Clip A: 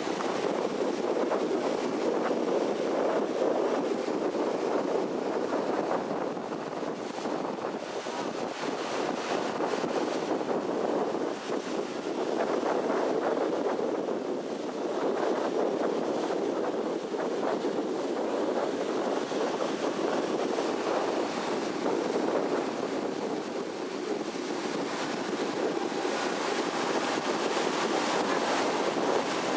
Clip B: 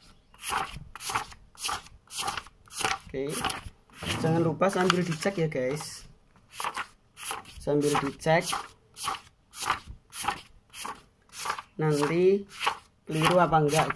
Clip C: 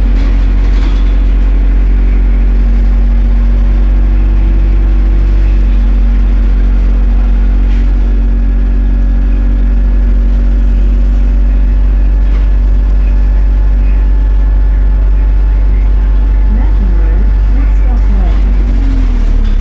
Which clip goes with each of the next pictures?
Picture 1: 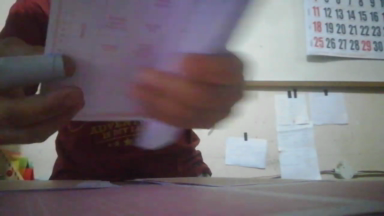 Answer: B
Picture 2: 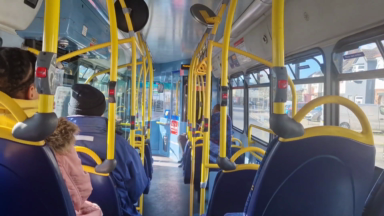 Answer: C